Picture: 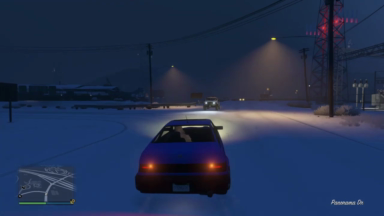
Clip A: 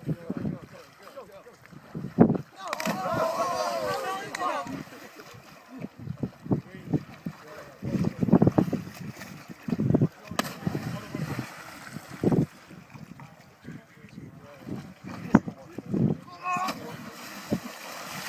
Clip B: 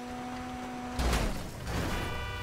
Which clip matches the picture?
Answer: B